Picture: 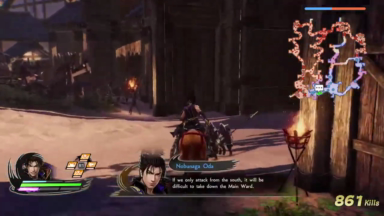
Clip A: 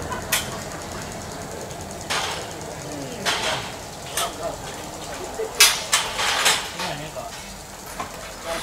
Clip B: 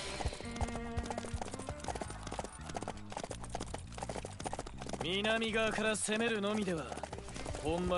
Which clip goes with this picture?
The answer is B